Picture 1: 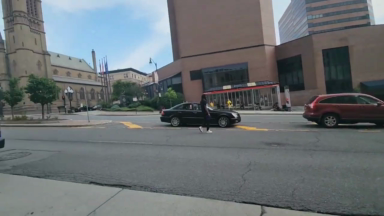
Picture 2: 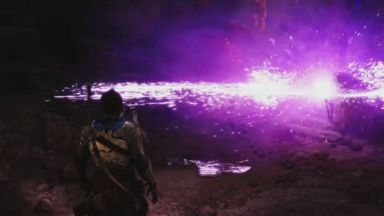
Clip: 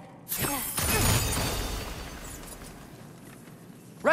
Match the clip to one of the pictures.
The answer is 2